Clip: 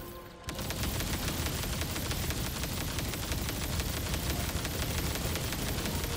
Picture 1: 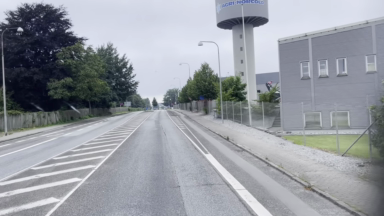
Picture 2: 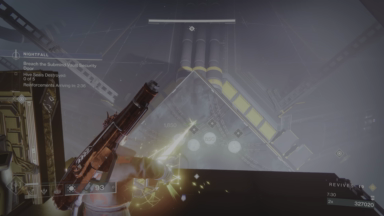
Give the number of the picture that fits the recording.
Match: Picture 2